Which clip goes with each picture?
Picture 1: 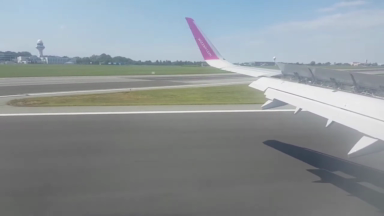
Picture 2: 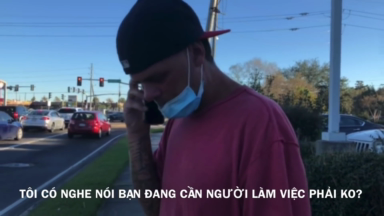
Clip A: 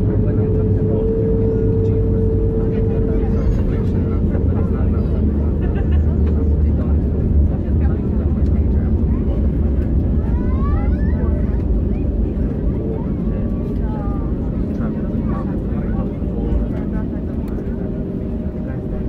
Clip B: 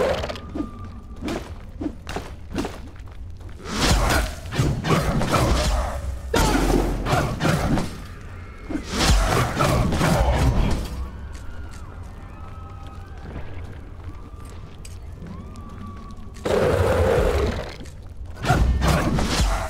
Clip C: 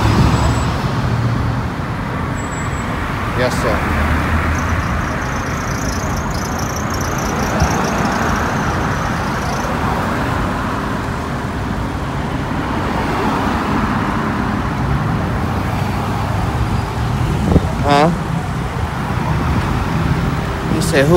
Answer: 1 A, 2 C